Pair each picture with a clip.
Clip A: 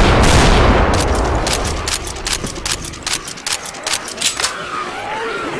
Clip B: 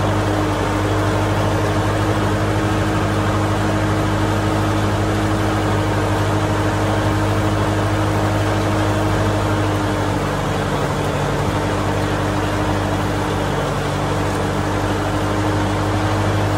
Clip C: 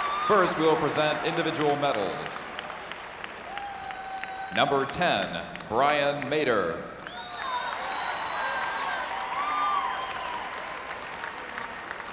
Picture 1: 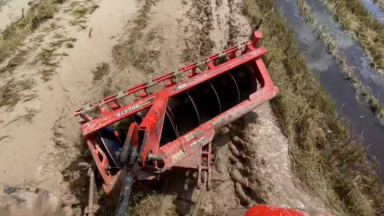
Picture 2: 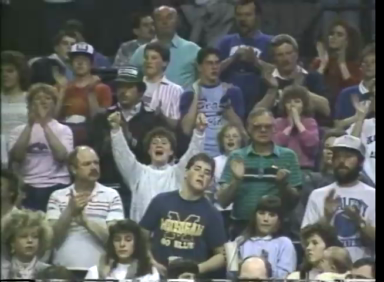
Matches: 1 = B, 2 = C